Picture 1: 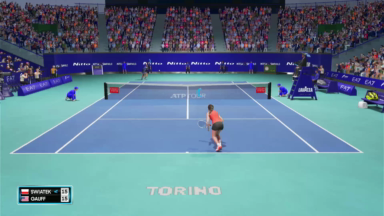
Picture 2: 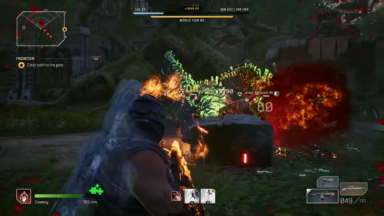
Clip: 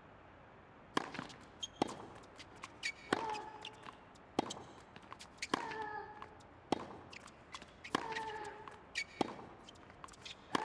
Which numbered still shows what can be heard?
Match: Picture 1